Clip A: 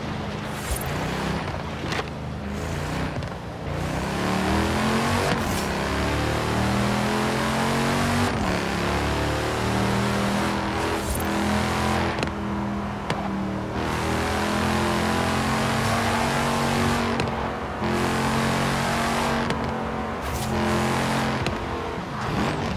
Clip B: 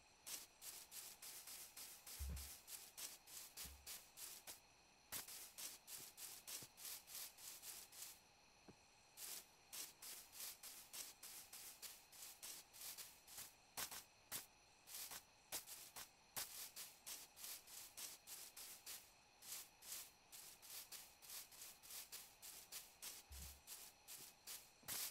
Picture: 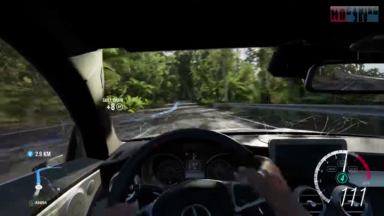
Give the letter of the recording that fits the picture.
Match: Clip A